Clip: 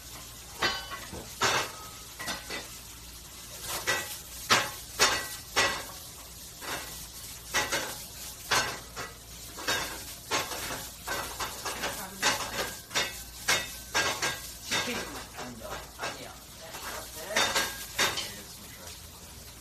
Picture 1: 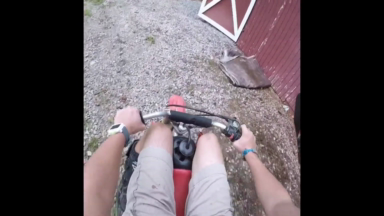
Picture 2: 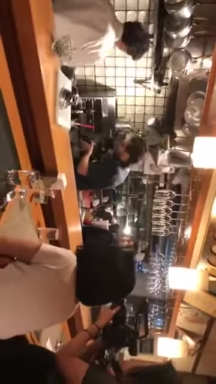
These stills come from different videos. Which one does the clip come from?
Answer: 2